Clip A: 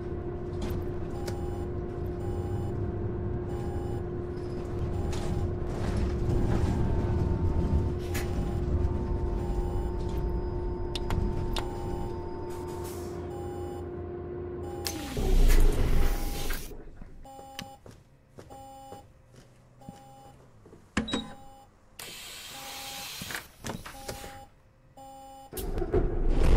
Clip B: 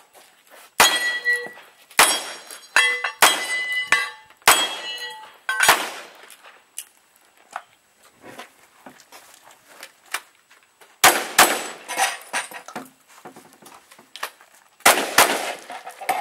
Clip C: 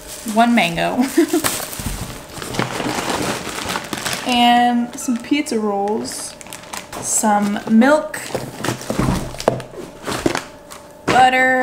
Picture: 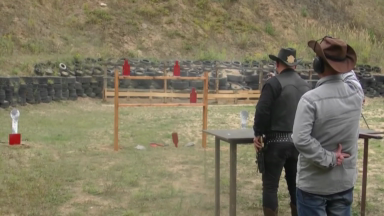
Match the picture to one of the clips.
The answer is B